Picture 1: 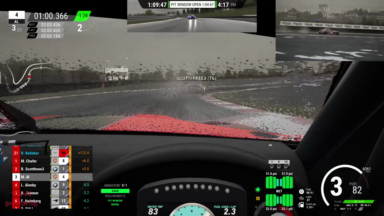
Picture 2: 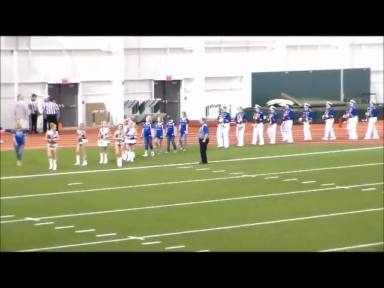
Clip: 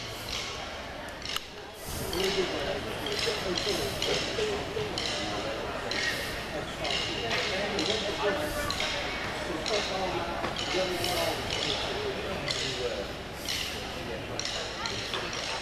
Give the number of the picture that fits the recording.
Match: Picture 2